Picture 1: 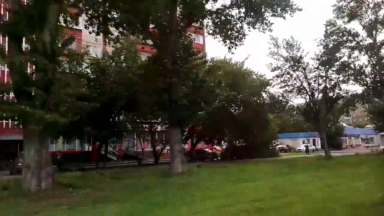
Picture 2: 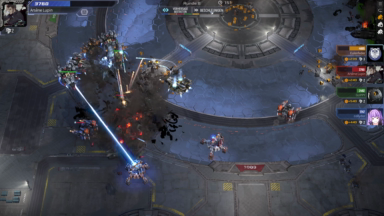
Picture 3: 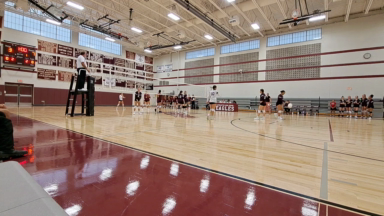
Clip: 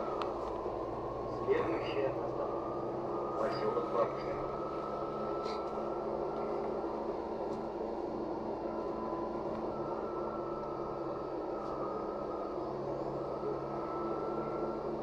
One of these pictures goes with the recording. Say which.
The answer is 1